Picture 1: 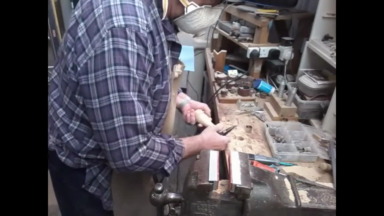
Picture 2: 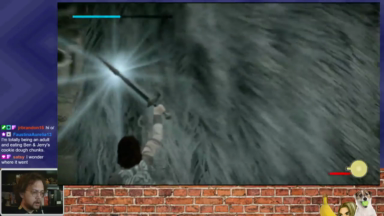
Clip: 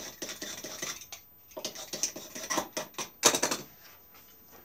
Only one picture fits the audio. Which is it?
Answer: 1